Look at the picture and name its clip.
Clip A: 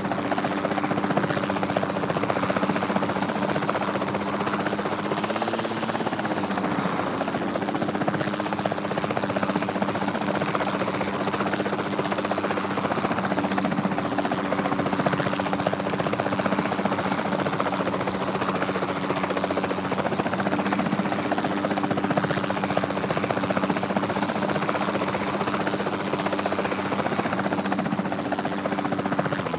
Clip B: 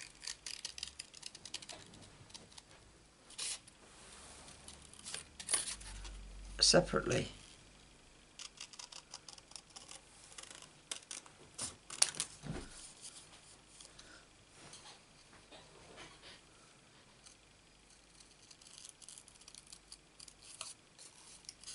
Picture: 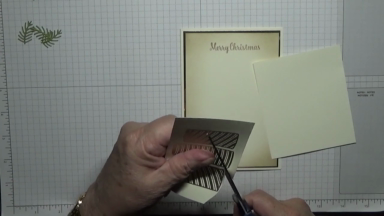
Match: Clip B